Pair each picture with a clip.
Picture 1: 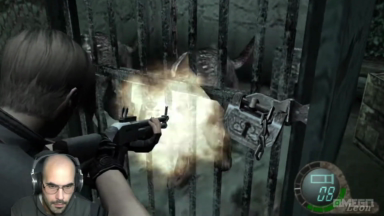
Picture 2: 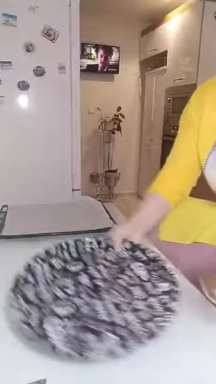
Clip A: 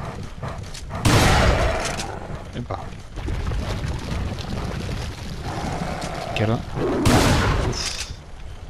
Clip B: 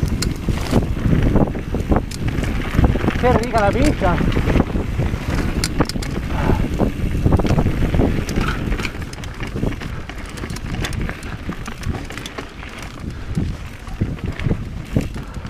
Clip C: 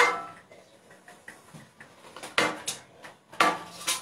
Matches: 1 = A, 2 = C